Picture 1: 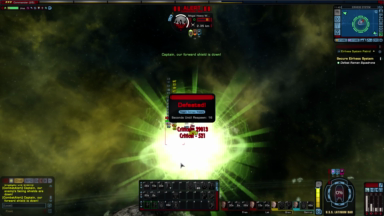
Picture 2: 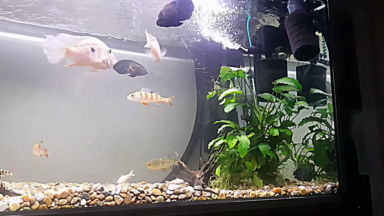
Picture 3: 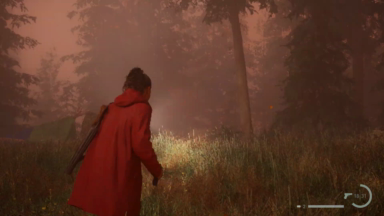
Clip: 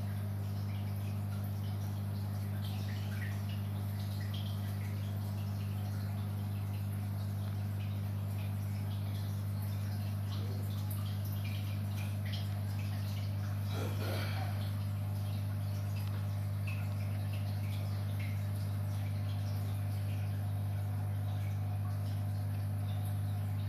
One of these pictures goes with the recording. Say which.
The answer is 2